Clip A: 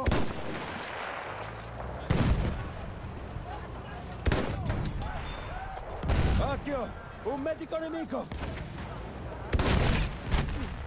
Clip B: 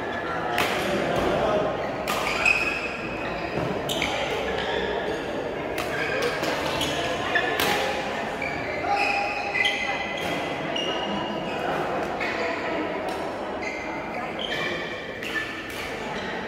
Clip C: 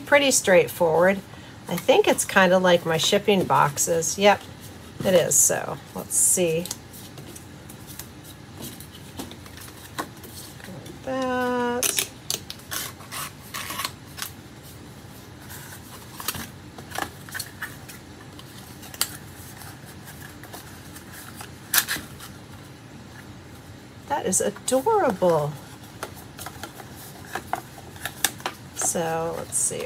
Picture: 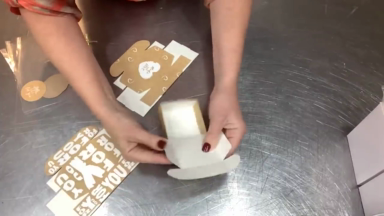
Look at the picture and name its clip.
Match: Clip C